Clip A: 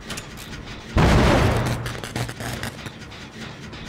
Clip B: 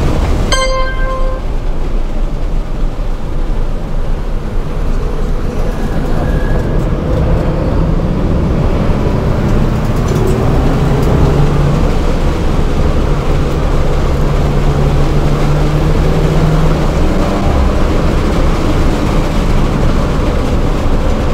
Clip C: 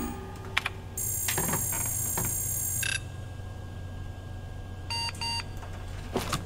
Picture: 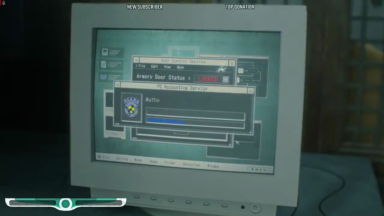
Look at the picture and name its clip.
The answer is C